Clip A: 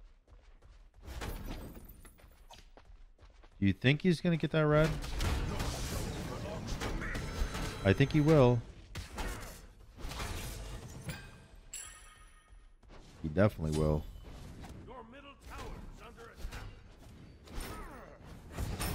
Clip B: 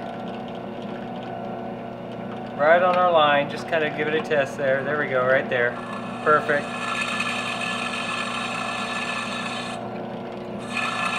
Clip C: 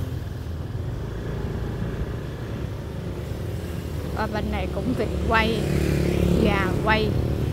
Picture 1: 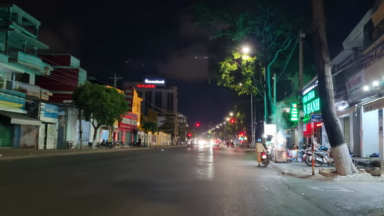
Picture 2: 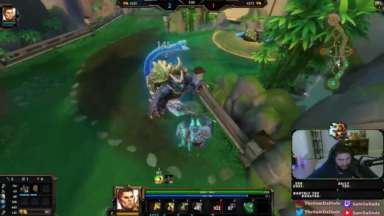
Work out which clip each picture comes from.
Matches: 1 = C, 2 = A